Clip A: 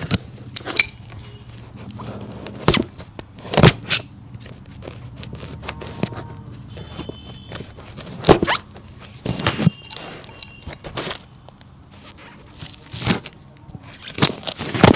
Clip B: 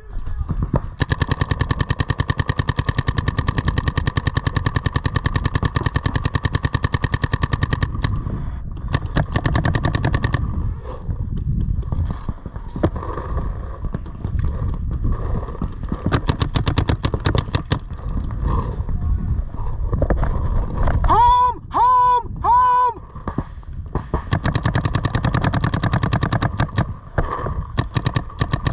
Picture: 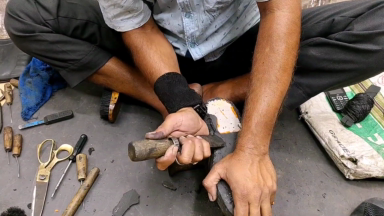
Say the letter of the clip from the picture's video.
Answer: A